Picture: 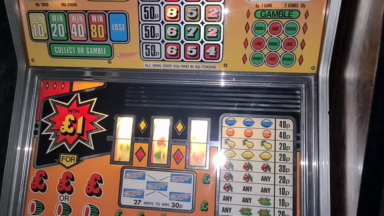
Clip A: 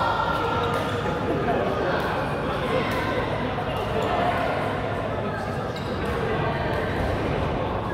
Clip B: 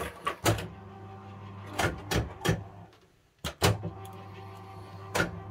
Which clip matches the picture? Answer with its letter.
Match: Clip B